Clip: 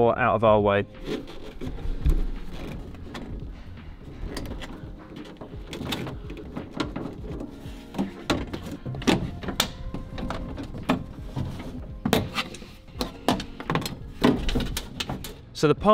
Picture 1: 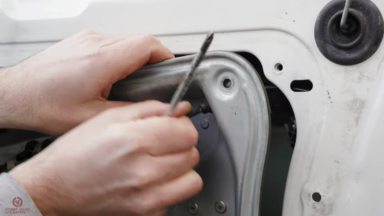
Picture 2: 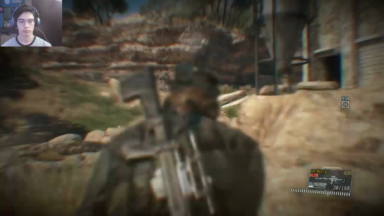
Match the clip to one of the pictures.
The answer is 1